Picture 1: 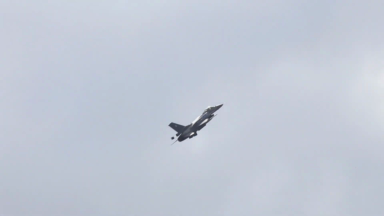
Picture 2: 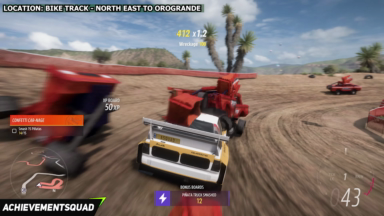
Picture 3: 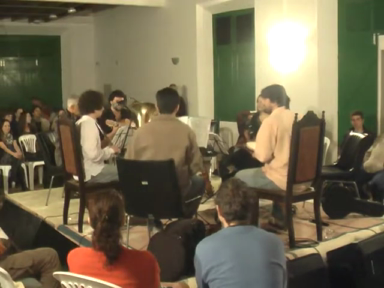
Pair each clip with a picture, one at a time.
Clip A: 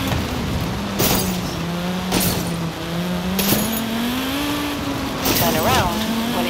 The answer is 2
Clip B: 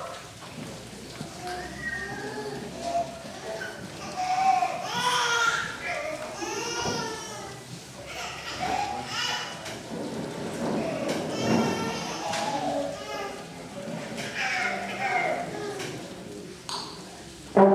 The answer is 3